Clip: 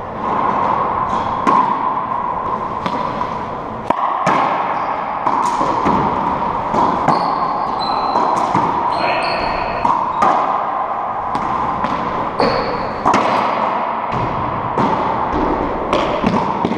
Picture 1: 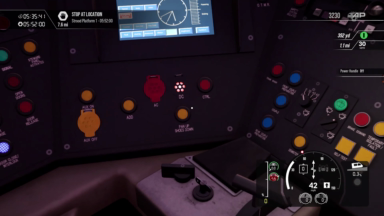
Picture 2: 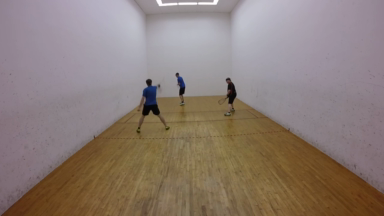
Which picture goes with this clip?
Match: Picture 2